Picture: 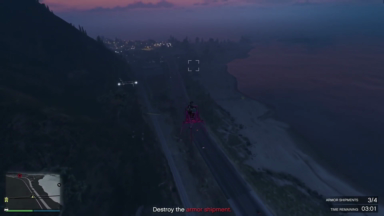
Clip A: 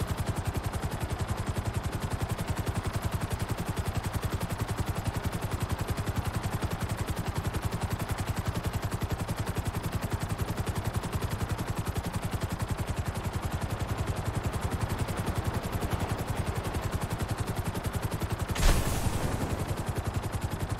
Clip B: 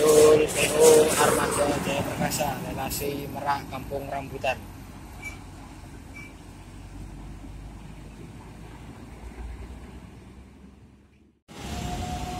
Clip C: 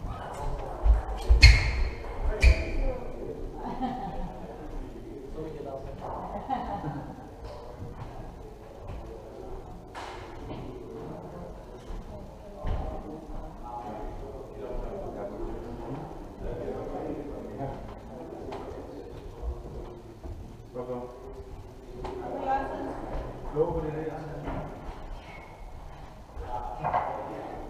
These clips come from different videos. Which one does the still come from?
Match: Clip A